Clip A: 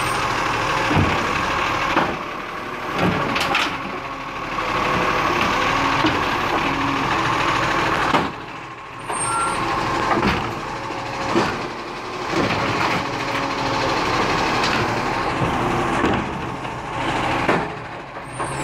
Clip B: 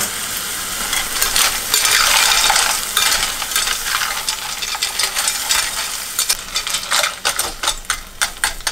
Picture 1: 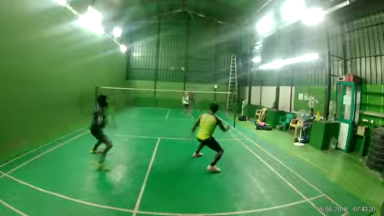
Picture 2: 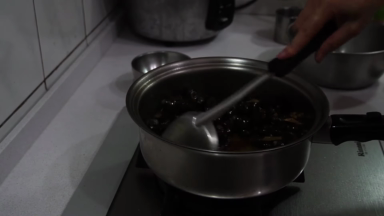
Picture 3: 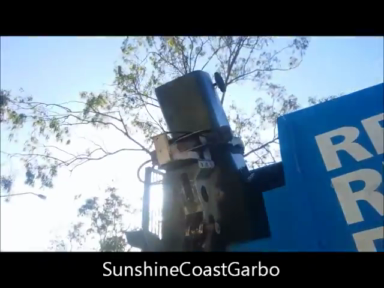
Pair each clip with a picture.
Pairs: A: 3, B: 2